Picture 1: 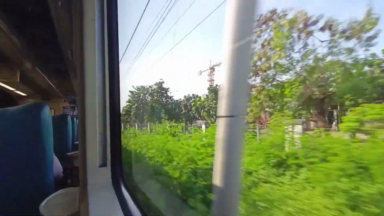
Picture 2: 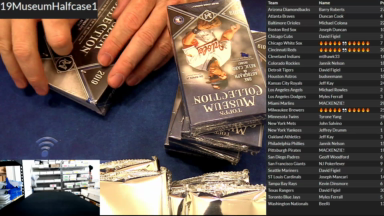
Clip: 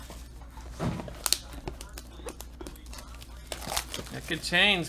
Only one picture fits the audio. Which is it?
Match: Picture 2